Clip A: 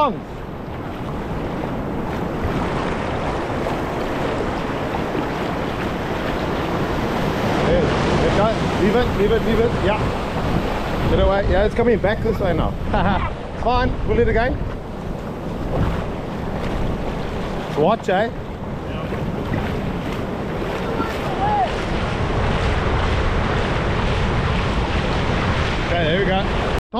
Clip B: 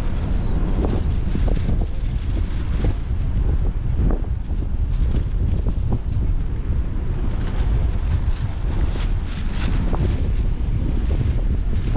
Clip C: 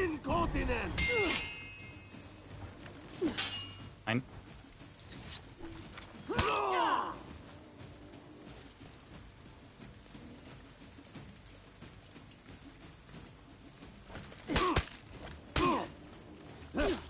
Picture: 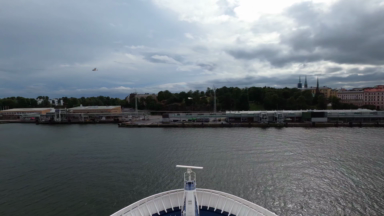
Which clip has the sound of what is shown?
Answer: B